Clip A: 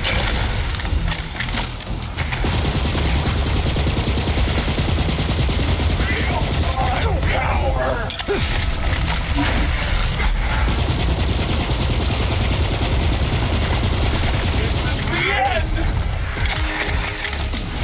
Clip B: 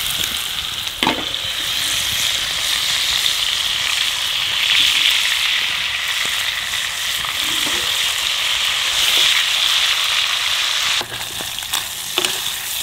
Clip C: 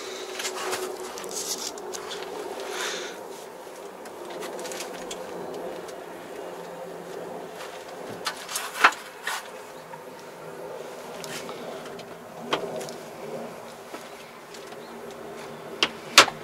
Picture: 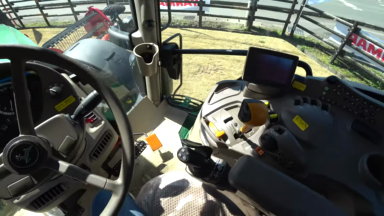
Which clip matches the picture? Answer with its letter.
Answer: C